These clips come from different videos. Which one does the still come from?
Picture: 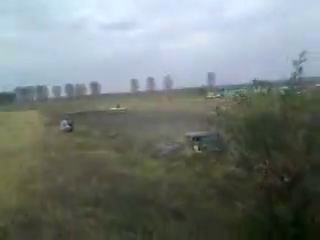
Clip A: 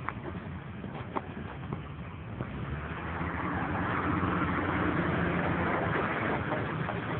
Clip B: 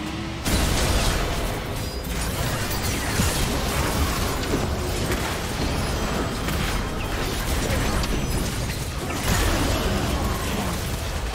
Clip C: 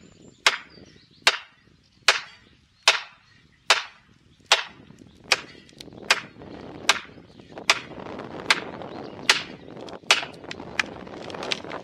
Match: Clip A